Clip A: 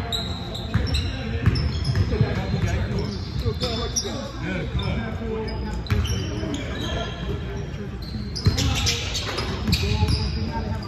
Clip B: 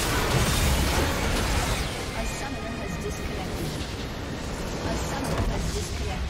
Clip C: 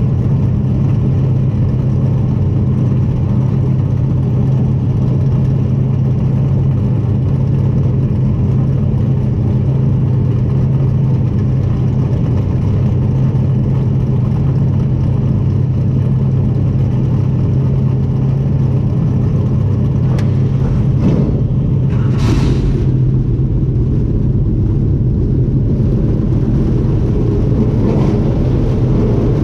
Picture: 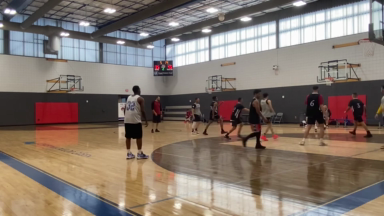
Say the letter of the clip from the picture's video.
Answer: A